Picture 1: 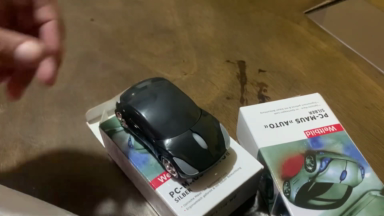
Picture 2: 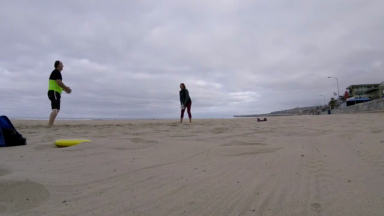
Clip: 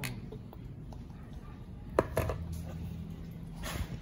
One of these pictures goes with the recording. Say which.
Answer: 1